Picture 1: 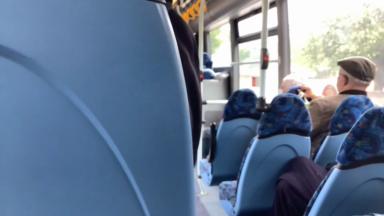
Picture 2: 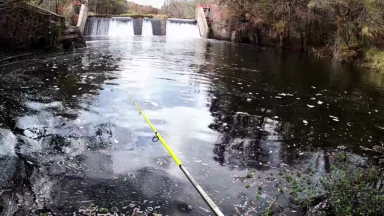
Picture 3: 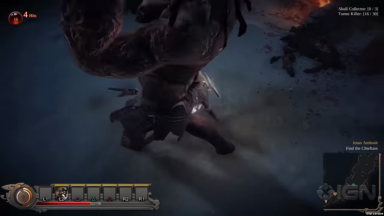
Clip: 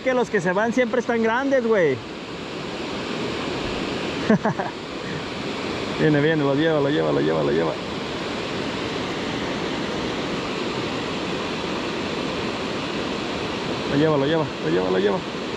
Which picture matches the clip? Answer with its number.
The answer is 2